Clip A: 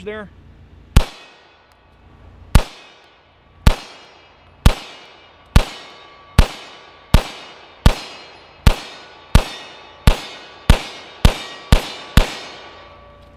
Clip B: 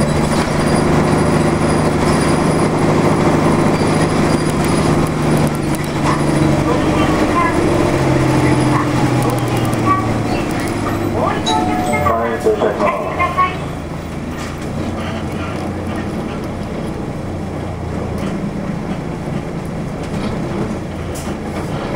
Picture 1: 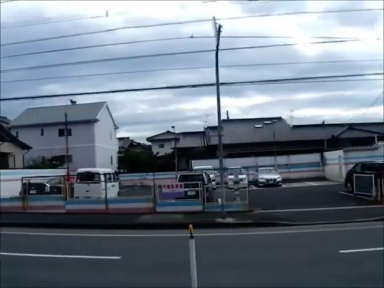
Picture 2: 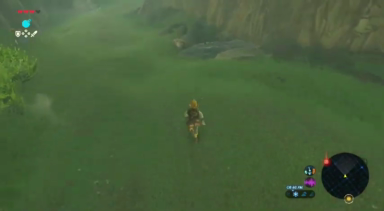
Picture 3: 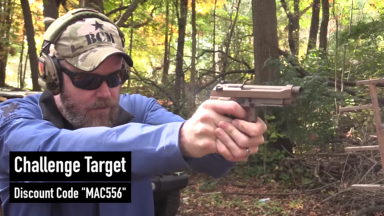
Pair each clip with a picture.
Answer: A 3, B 1